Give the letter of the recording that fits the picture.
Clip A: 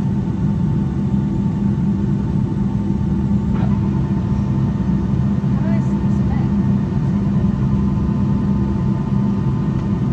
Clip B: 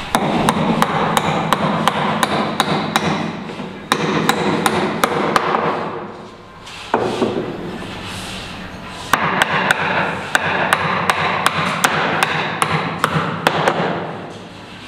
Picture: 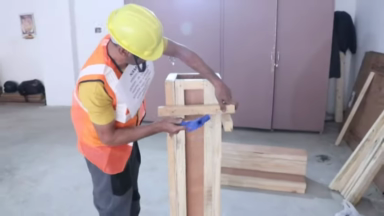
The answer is B